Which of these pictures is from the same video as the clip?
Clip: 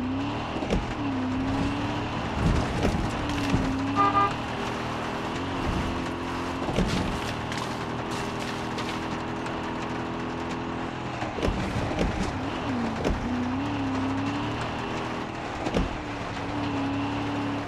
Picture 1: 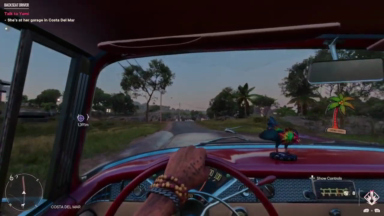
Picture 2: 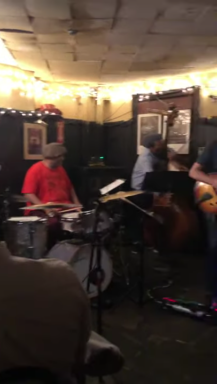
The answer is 1